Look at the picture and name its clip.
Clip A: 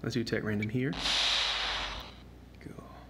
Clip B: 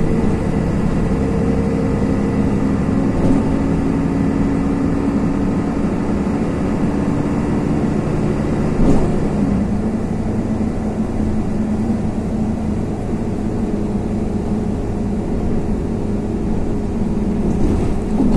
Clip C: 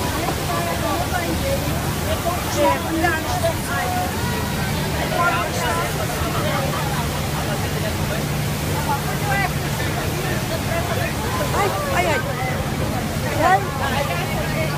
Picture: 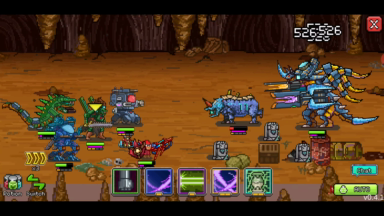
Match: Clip A